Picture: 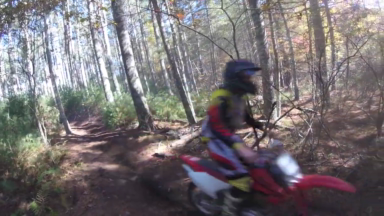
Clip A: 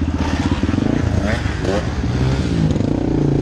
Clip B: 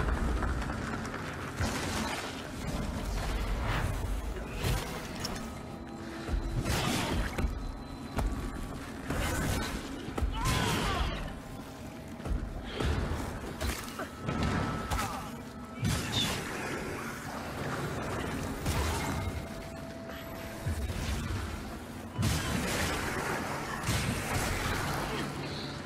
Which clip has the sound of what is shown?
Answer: A